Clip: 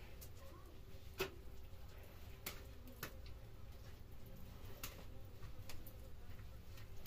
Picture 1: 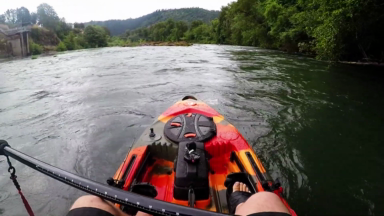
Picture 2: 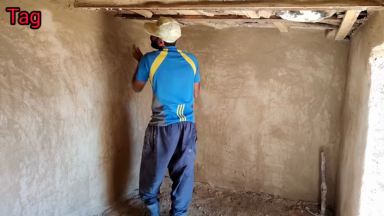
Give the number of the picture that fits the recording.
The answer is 2